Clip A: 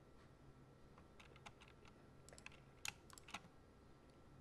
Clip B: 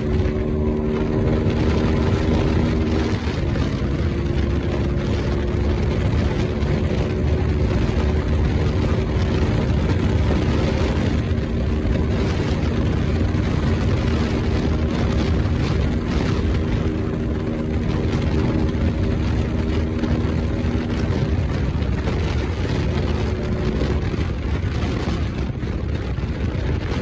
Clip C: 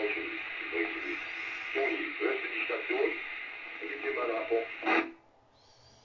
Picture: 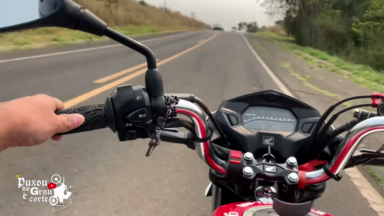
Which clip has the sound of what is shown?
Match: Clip B